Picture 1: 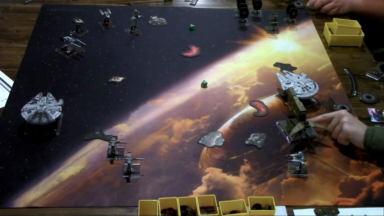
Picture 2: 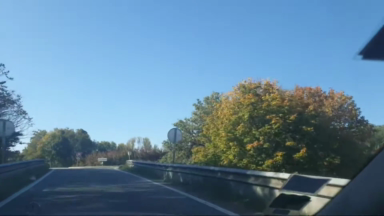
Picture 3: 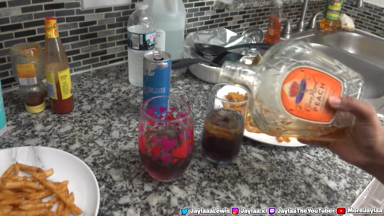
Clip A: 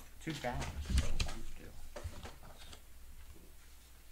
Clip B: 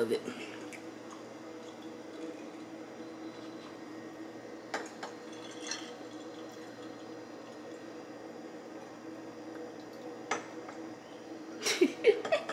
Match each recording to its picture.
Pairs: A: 1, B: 3